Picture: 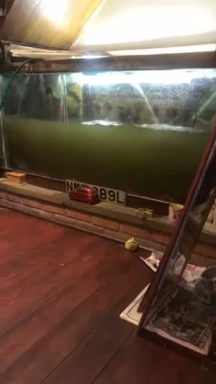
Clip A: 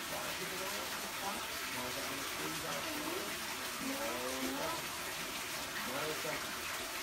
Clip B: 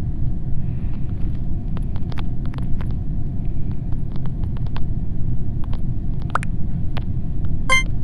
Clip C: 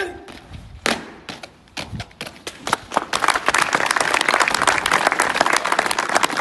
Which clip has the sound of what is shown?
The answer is A